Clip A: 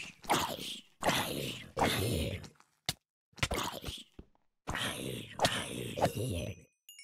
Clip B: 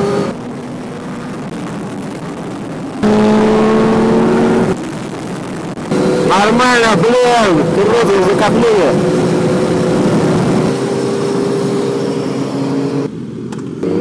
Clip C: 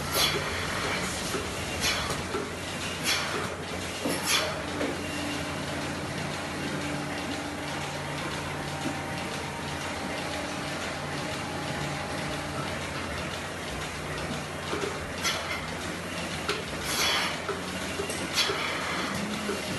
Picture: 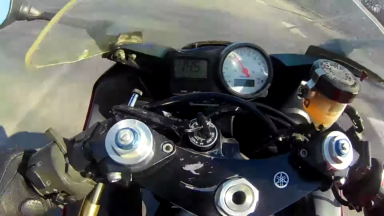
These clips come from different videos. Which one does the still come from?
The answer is B